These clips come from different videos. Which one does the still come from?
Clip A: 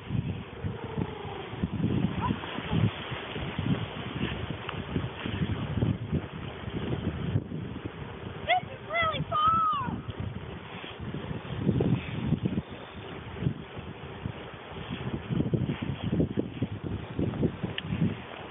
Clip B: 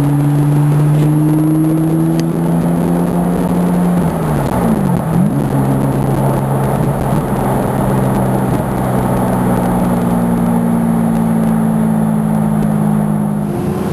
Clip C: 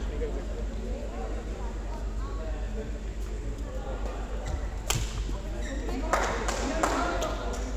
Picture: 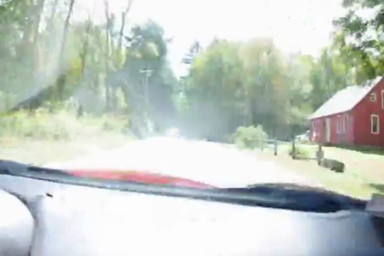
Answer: B